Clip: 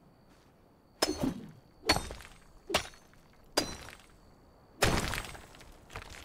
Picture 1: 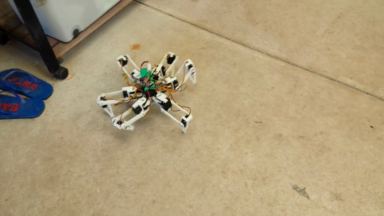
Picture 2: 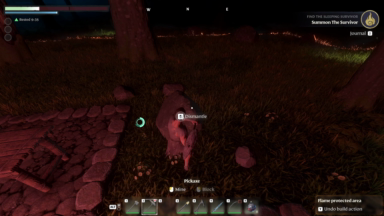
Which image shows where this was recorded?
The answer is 2